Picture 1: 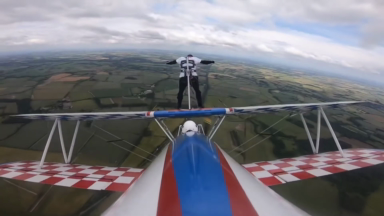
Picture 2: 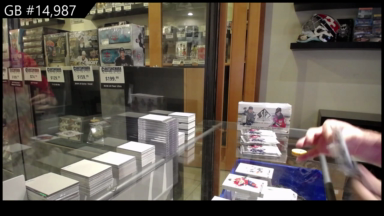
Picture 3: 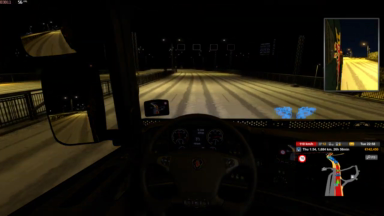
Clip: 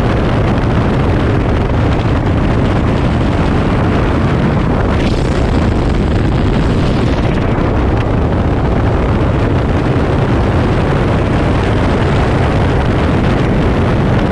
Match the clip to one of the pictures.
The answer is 1